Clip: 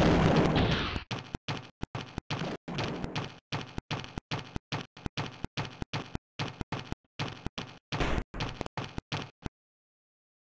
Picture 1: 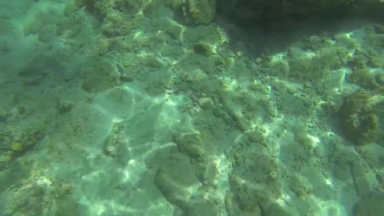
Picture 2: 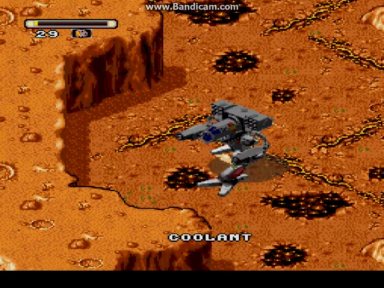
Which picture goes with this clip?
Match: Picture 2